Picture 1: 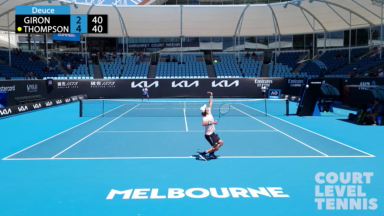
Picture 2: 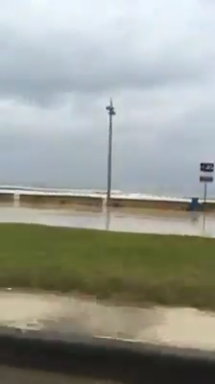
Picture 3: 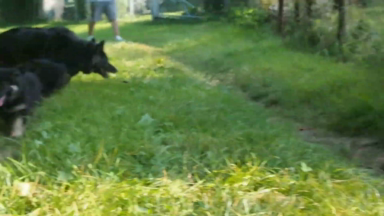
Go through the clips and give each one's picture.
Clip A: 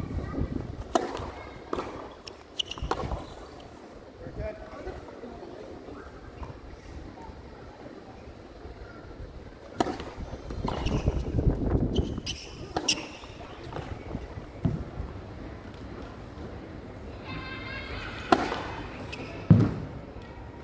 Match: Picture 1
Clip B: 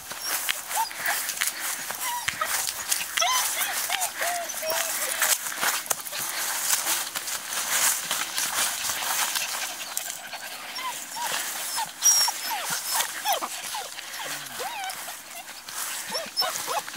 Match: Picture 3